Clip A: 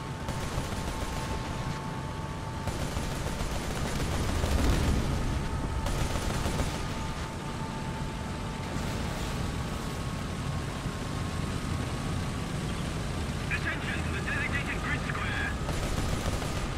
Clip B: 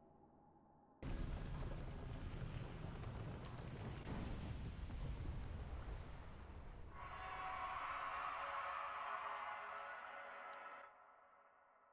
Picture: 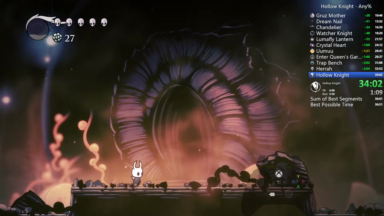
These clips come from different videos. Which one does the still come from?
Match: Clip B